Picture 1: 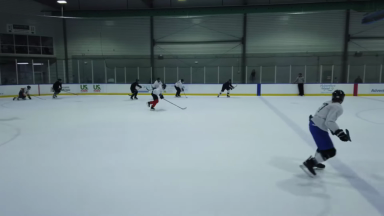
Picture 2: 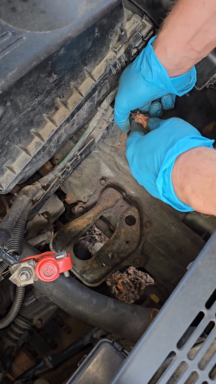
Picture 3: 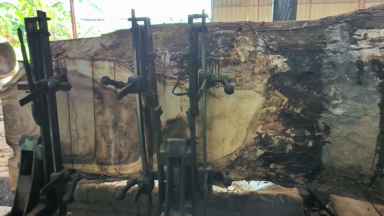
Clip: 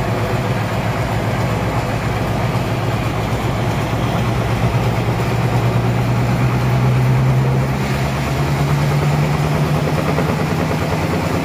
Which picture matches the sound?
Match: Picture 3